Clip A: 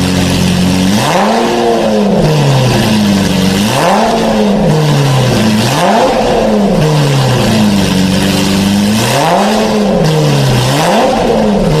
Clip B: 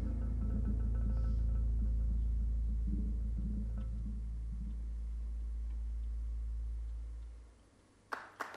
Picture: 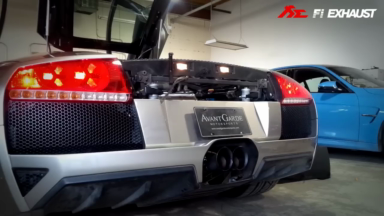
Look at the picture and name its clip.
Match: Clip A